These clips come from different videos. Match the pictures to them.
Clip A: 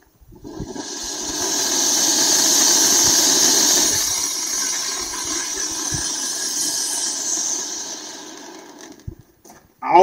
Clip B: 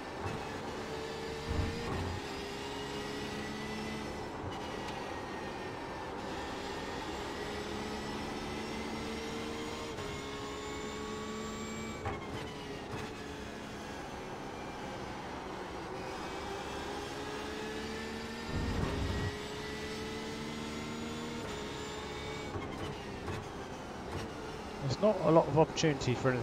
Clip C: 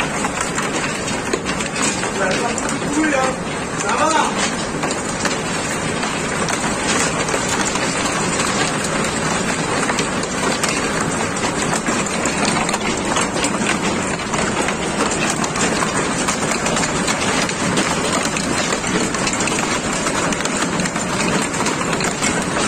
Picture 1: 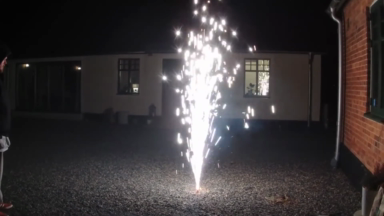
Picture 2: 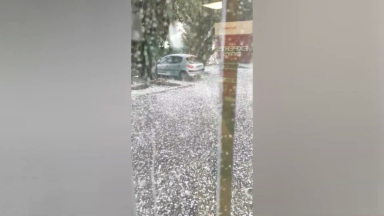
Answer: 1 A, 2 C